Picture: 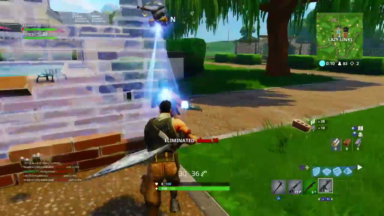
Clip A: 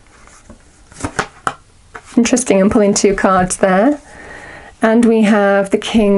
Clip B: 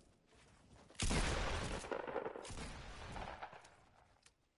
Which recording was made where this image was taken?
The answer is B